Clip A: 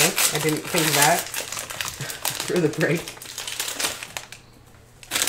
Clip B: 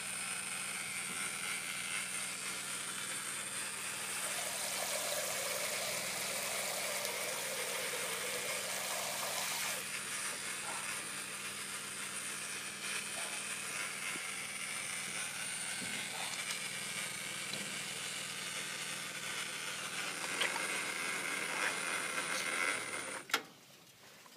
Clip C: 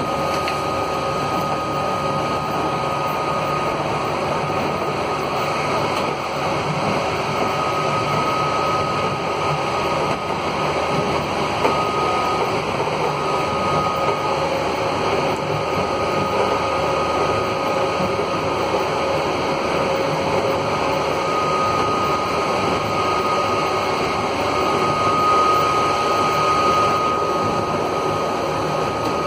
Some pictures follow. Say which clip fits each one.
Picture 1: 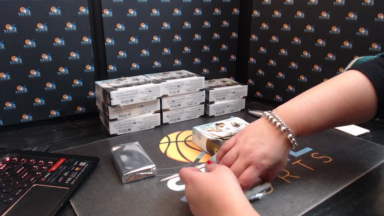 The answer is A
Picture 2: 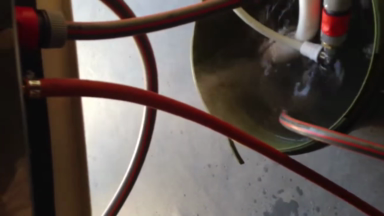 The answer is B